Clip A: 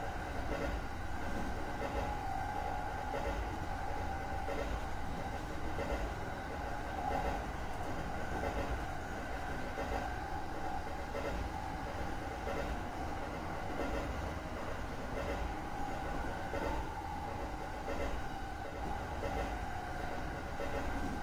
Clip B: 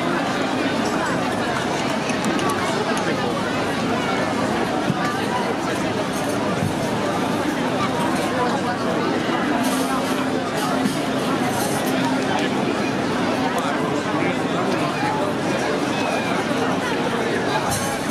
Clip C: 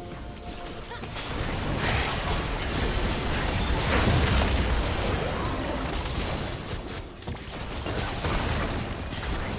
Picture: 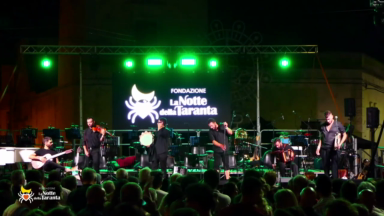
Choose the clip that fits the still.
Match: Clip B